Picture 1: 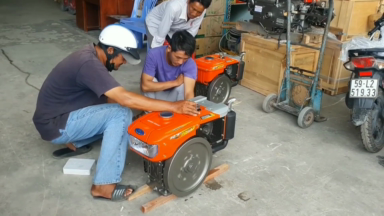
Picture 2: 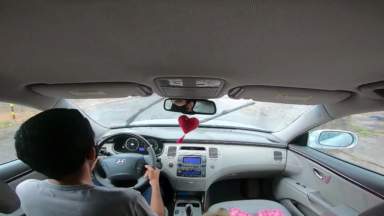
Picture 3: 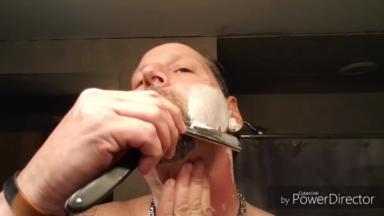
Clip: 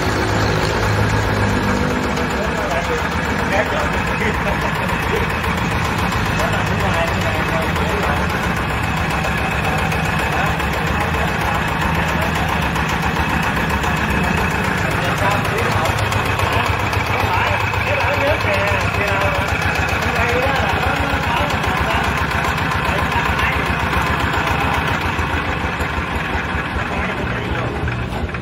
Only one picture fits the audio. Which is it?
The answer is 1